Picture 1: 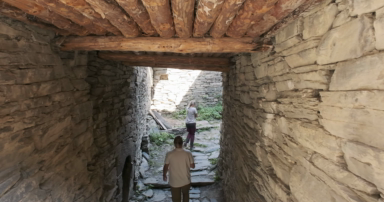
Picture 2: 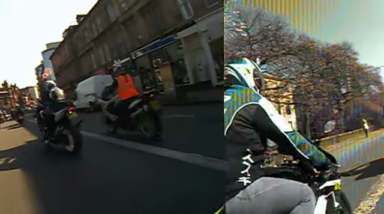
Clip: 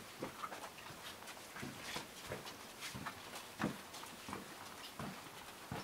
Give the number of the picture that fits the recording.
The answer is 1